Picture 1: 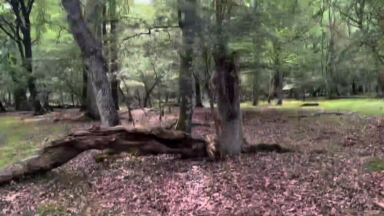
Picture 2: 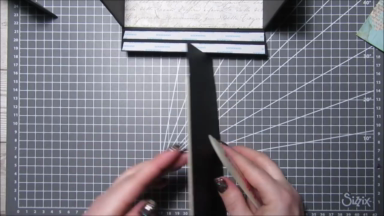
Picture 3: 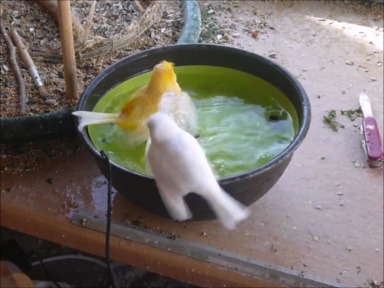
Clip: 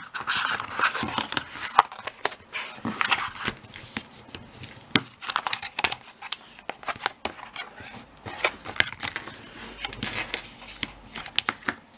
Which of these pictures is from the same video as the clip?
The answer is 2